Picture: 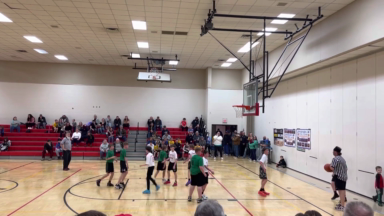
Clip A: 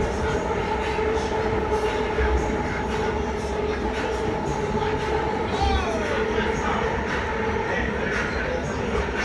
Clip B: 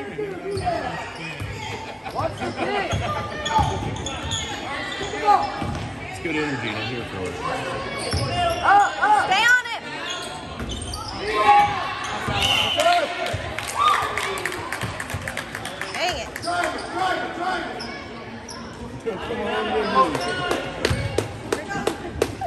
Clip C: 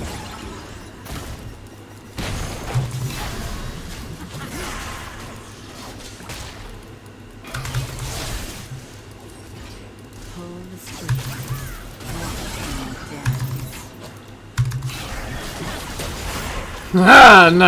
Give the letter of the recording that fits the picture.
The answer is B